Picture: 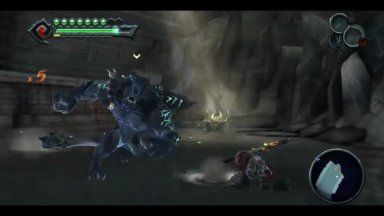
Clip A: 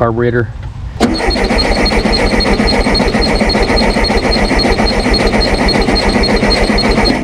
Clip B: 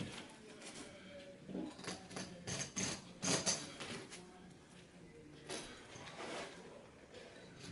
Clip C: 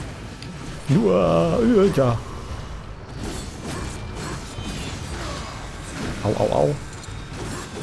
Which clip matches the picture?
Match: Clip C